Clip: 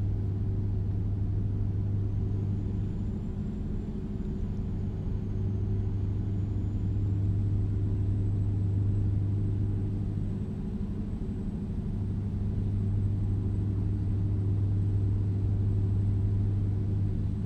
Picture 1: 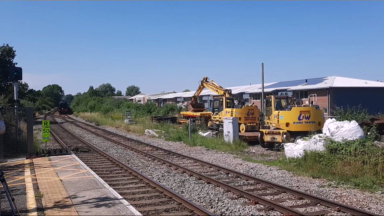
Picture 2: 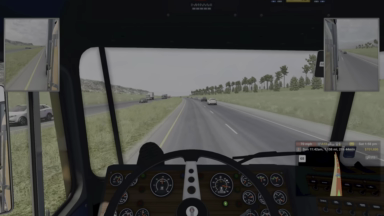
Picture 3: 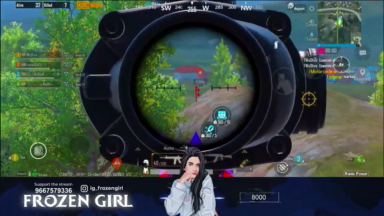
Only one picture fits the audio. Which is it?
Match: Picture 2